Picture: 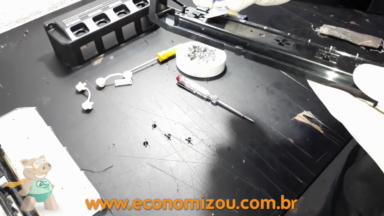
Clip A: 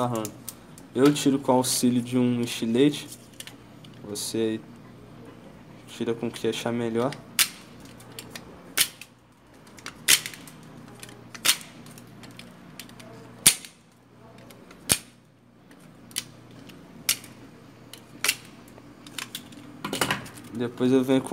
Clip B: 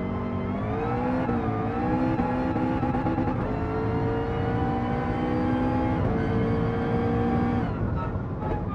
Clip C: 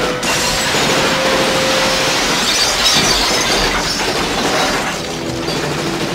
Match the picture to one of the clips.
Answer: A